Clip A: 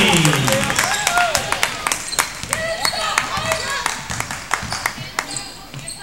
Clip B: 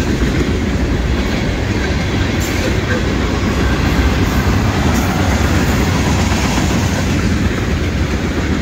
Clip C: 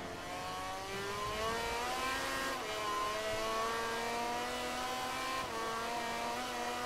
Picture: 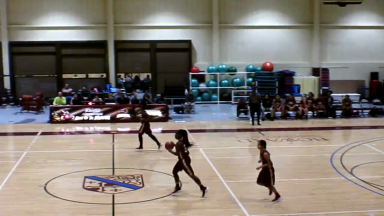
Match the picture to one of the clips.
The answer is A